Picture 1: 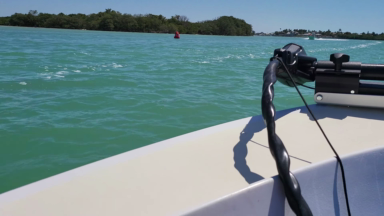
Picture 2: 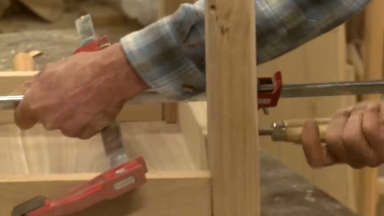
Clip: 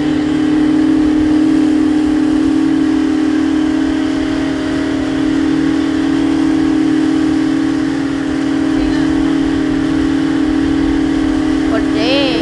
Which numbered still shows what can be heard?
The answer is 1